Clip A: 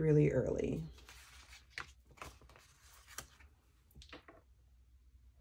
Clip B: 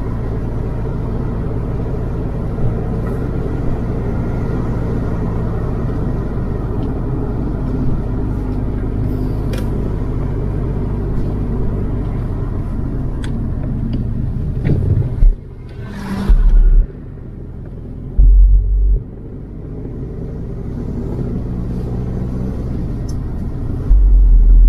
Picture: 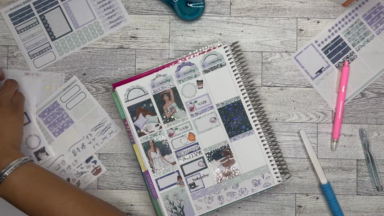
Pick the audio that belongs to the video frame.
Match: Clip A